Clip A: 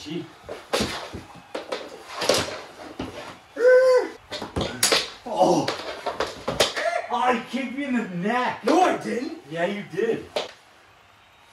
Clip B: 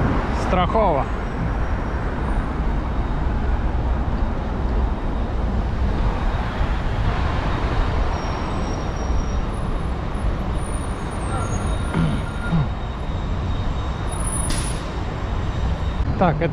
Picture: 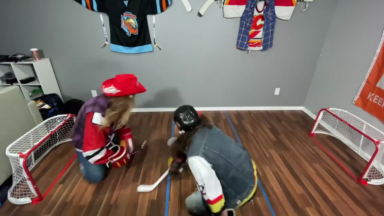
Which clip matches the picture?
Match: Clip A